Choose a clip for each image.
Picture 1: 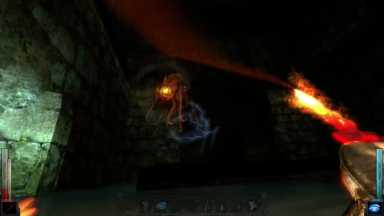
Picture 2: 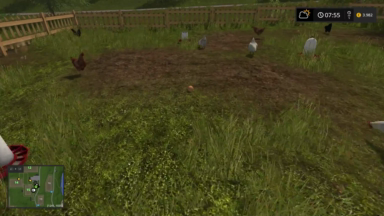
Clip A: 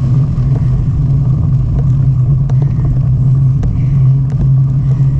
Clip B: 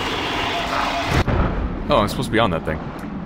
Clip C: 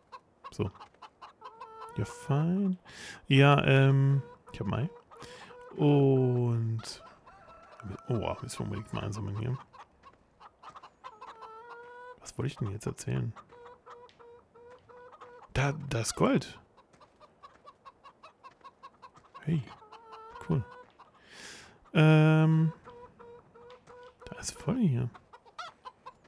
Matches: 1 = B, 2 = C